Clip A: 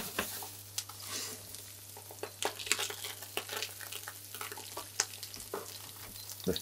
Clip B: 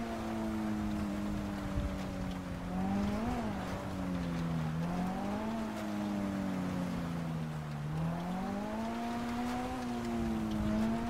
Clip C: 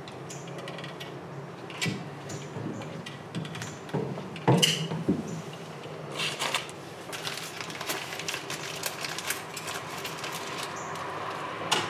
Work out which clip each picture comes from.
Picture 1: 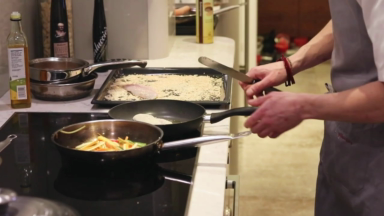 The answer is A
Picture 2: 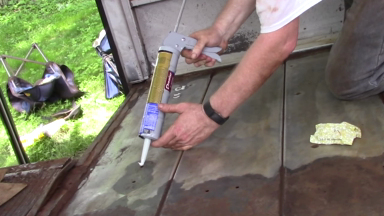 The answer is C